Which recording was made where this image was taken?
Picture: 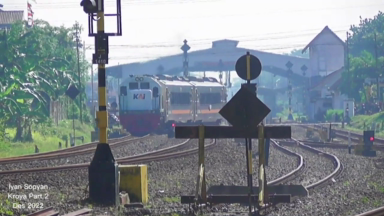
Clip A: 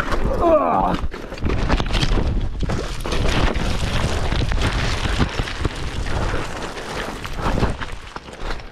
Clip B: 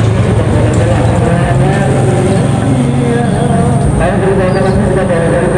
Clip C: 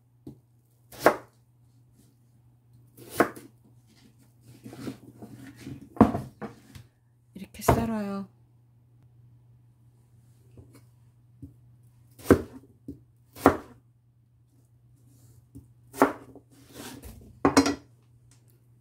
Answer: B